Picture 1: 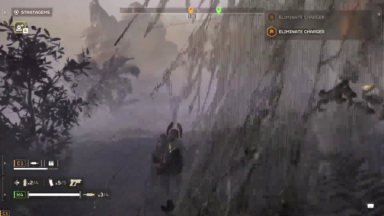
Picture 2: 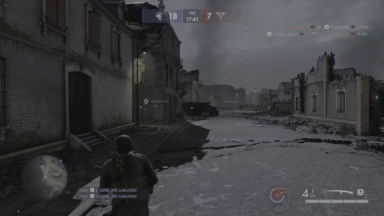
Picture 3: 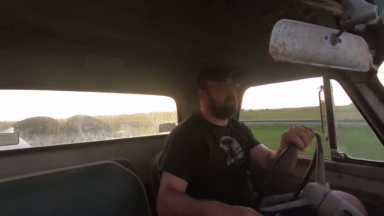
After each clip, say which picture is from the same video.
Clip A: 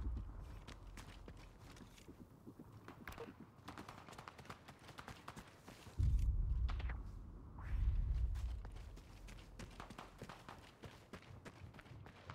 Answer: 2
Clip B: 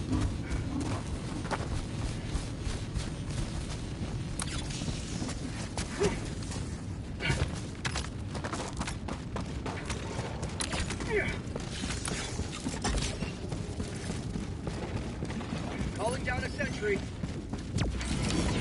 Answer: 1